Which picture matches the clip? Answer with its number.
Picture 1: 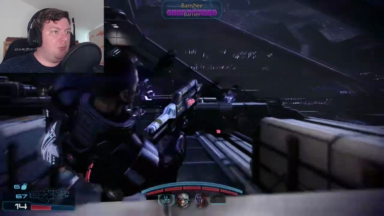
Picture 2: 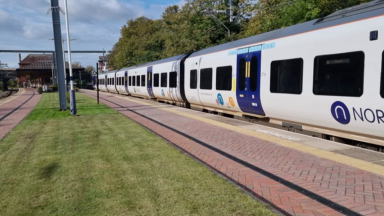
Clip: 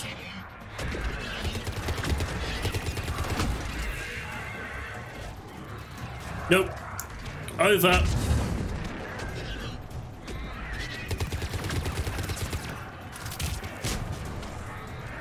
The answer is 1